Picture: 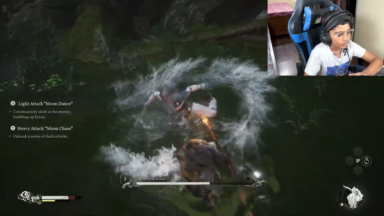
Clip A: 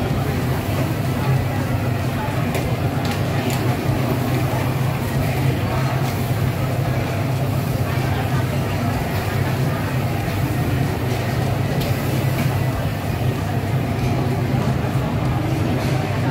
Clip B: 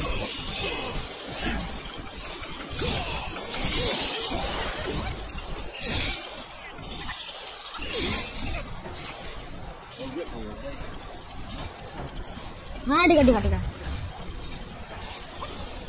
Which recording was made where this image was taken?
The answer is B